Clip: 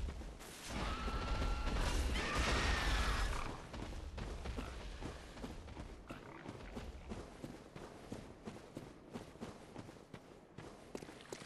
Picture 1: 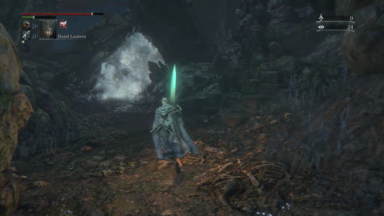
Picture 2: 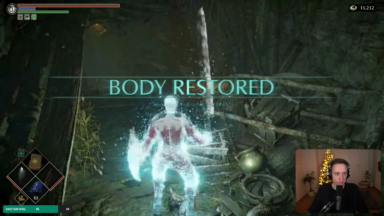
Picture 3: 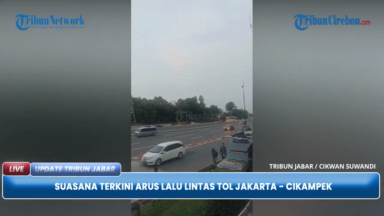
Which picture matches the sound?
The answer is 1